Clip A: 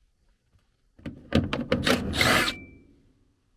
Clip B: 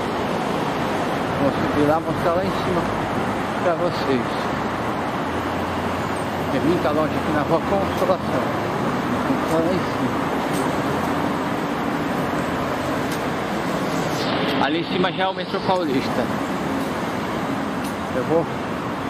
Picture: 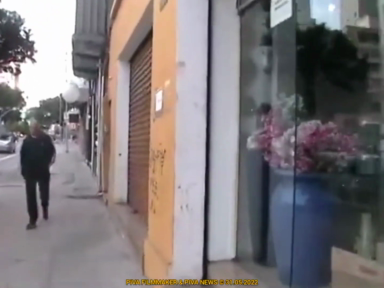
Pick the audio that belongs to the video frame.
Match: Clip B